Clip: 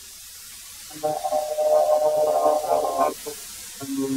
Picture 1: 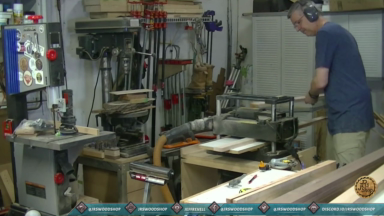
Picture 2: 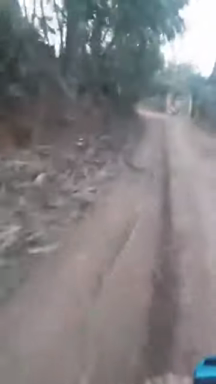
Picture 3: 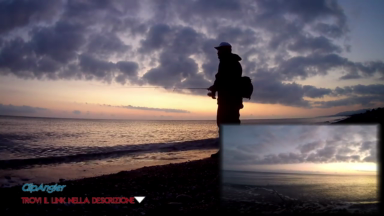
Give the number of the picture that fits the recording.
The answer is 1